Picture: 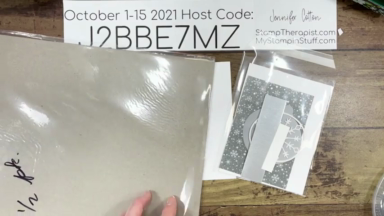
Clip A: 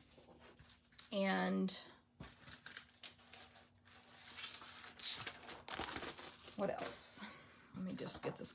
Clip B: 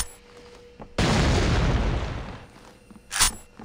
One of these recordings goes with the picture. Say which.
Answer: A